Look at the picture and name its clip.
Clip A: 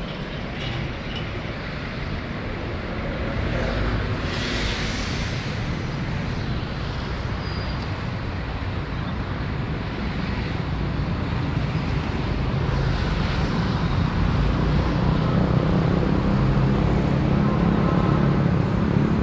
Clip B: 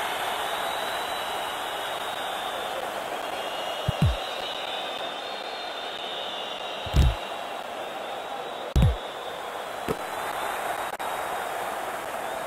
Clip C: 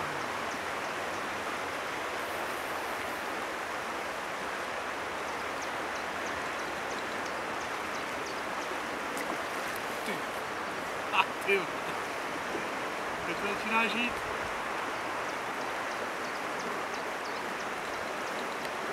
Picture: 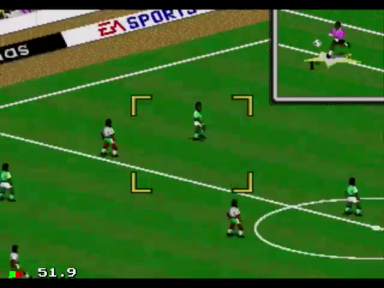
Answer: B